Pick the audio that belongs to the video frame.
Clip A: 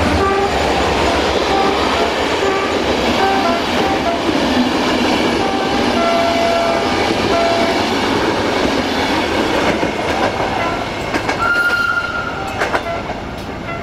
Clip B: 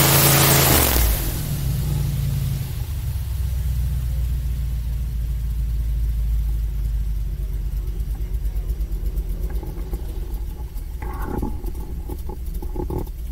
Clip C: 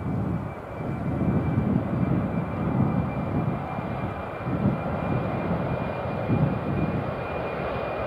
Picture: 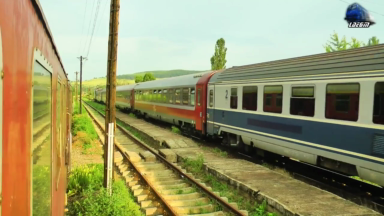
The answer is A